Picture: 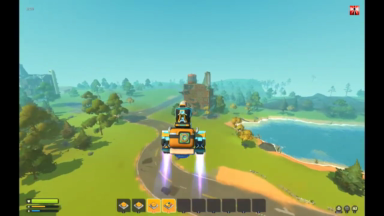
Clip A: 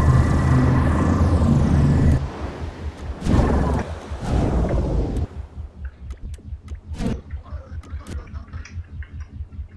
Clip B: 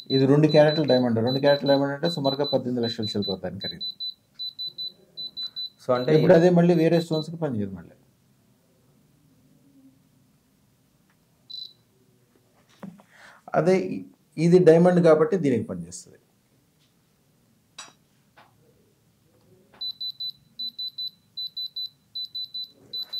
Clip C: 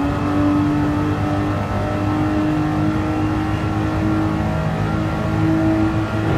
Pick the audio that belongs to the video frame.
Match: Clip A